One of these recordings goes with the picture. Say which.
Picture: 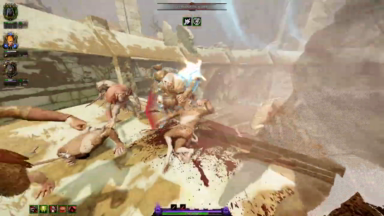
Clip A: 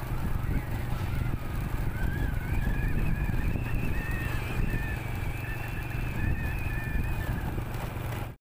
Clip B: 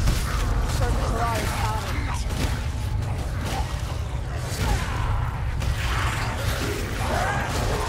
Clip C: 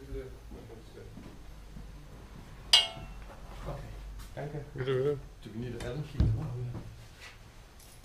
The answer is B